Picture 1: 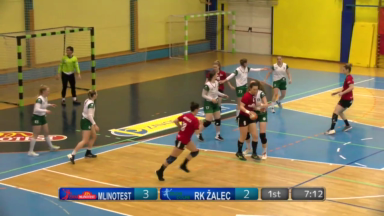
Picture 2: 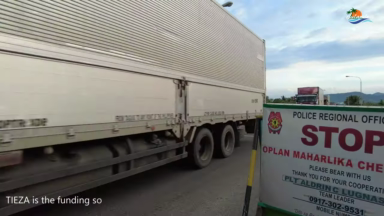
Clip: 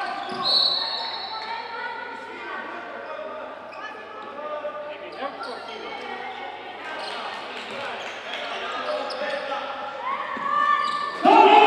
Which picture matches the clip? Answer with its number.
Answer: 1